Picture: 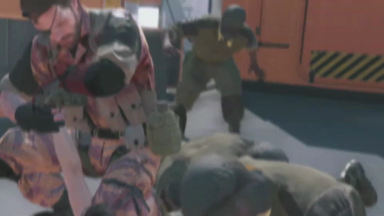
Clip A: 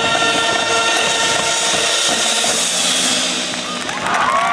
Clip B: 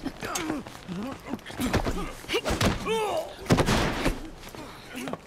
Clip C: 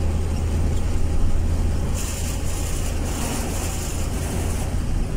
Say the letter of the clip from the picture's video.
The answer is B